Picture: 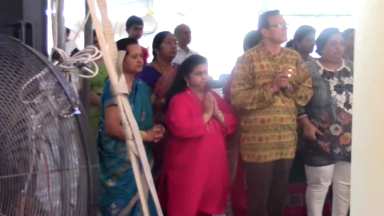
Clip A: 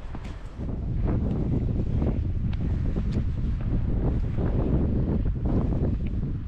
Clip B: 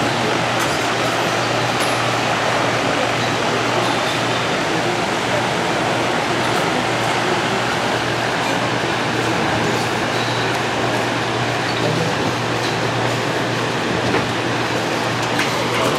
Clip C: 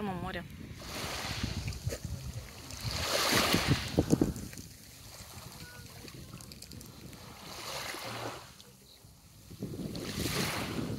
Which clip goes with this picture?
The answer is B